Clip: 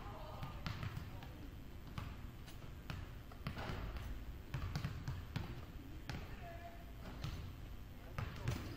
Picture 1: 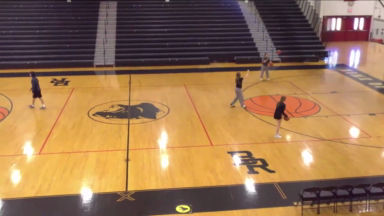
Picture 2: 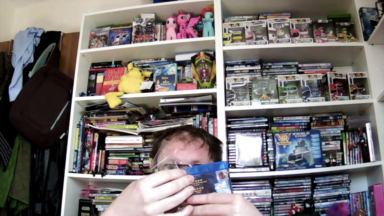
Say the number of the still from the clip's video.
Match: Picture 1